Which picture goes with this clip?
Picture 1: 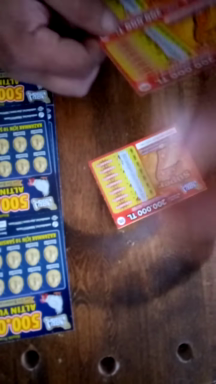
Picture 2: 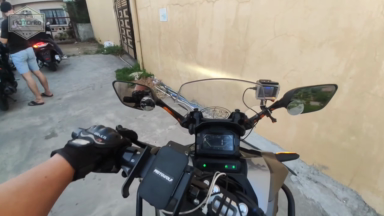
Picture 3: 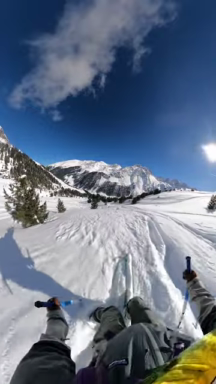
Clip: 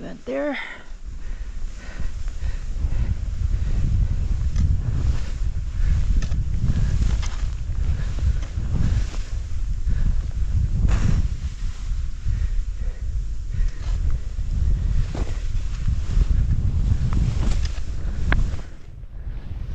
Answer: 3